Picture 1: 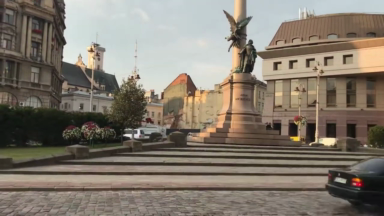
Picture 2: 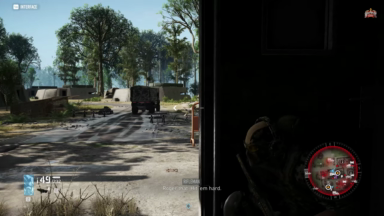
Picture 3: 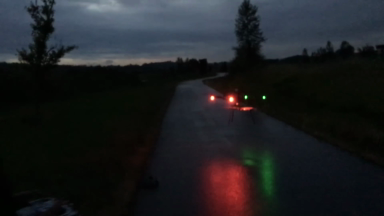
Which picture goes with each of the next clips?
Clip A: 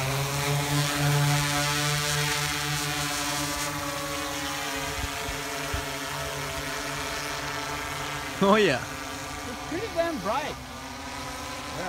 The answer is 3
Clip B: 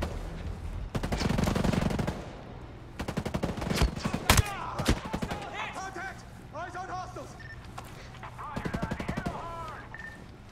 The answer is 2